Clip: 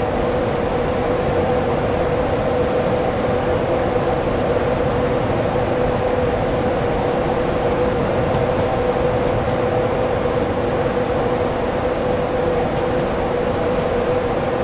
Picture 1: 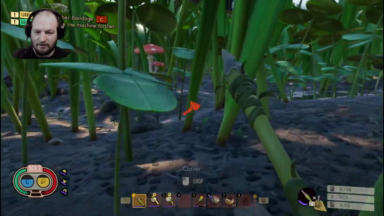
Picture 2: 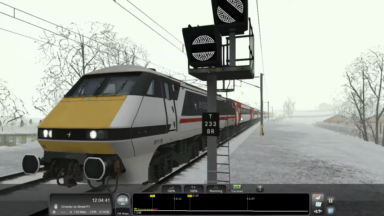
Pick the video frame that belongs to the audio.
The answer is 2